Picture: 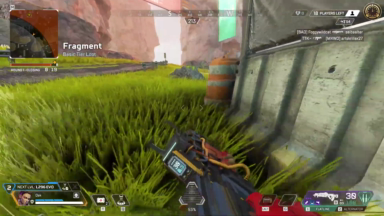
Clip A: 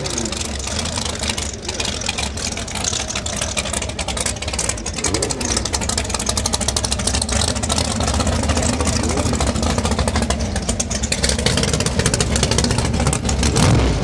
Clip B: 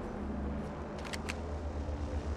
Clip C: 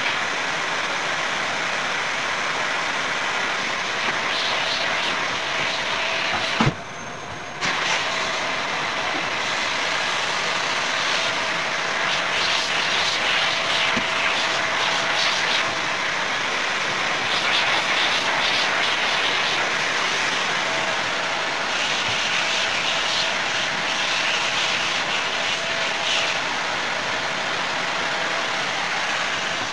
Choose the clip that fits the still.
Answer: B